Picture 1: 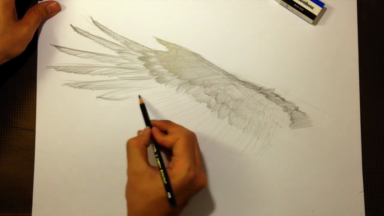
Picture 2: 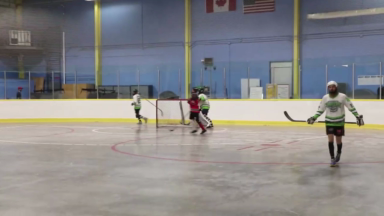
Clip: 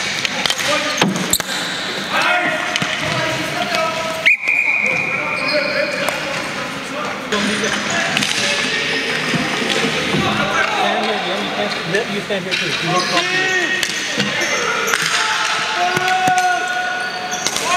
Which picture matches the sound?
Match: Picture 2